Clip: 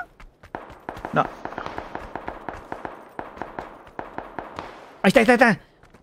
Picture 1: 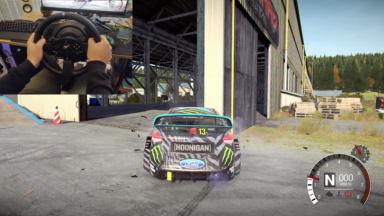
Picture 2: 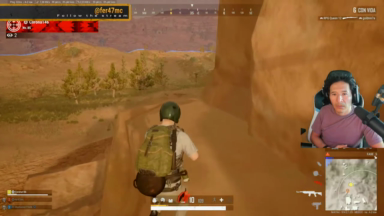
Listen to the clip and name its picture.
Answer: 2